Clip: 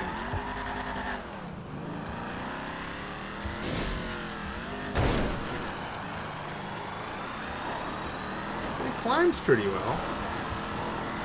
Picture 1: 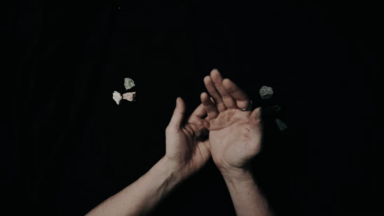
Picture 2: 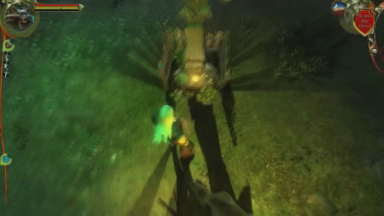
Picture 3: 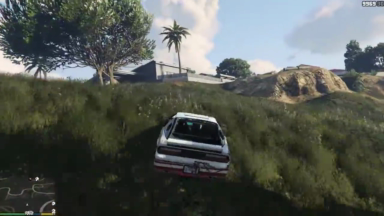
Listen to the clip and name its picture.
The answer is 3